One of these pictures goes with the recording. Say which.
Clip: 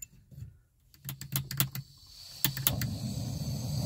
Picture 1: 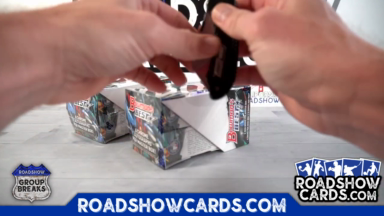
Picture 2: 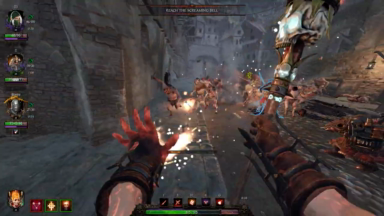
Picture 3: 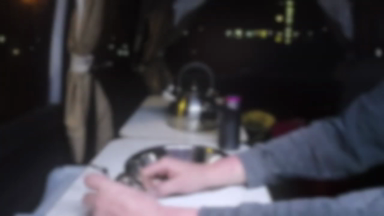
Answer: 3